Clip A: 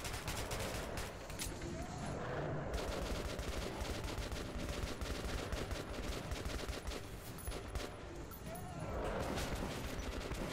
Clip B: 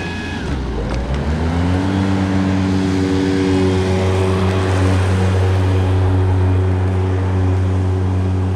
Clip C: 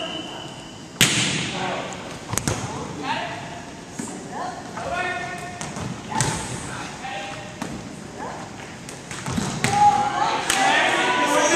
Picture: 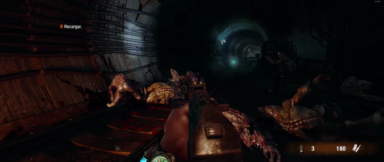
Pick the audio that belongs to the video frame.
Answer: A